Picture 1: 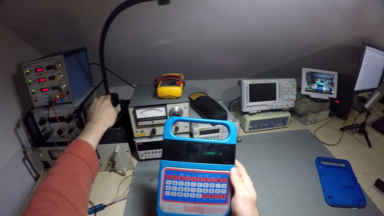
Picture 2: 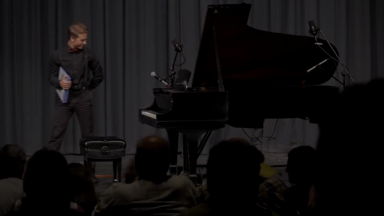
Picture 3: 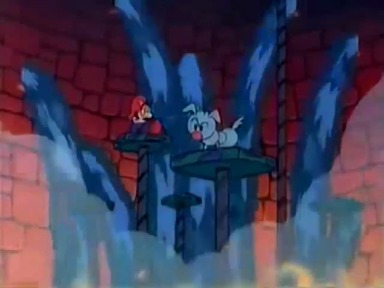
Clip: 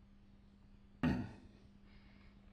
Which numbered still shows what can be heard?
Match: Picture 1